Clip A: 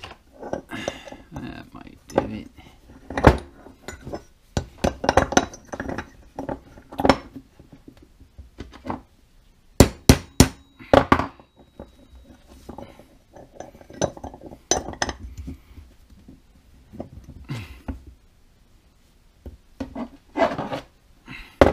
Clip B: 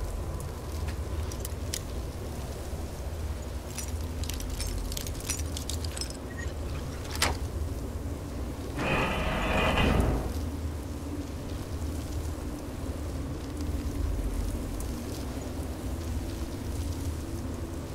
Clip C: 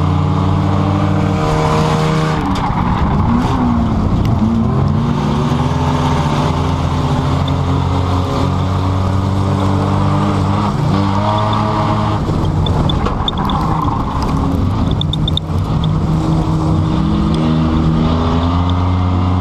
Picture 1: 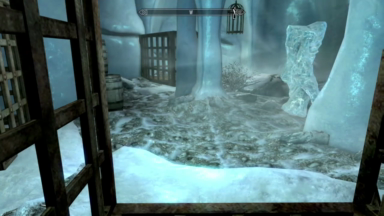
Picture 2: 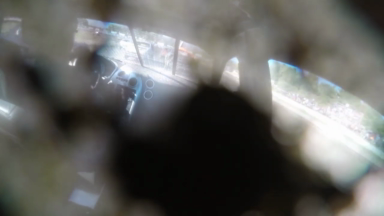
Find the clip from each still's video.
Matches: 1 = B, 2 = C